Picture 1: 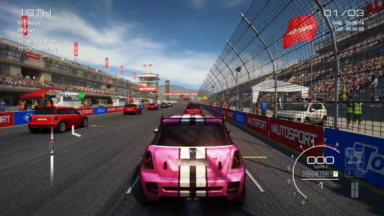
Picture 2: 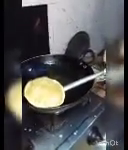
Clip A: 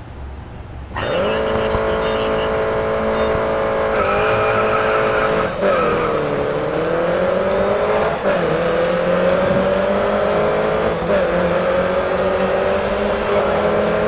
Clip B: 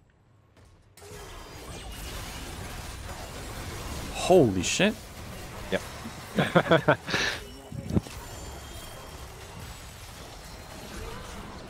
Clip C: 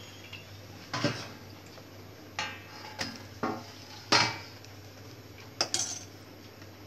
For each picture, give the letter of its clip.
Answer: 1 A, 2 C